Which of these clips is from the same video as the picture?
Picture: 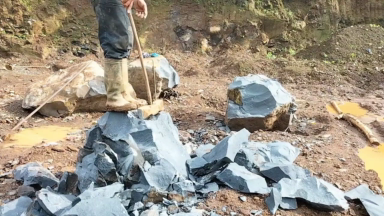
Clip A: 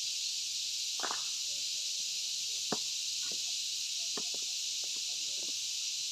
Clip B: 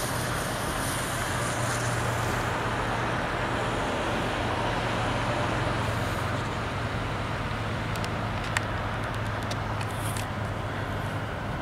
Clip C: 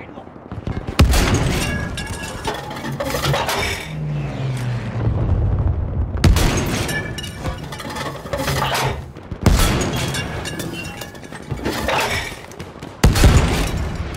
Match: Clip A